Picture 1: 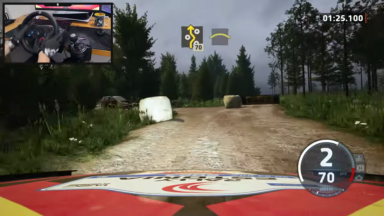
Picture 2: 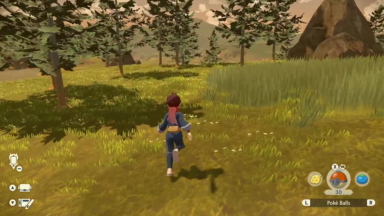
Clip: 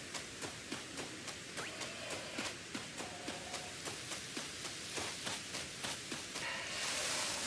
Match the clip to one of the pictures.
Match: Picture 2